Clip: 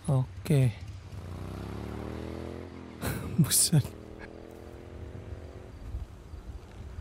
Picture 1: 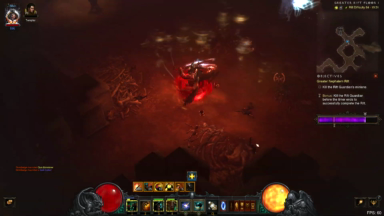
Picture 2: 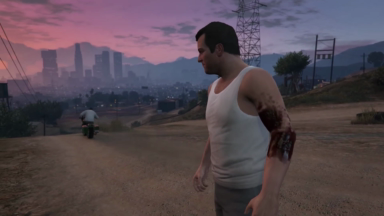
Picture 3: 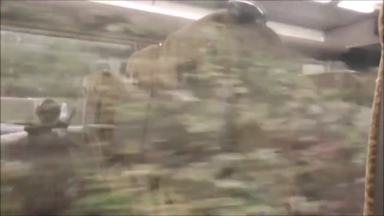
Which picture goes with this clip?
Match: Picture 2